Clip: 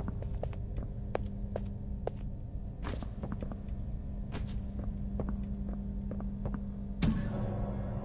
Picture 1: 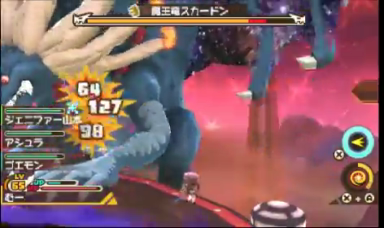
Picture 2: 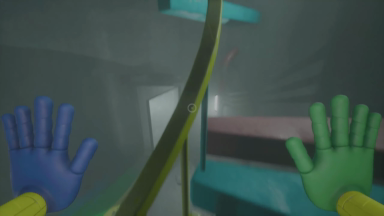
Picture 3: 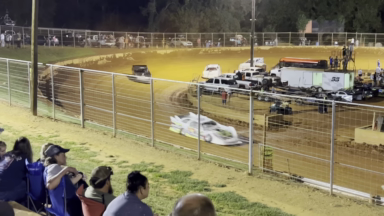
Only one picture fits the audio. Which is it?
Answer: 2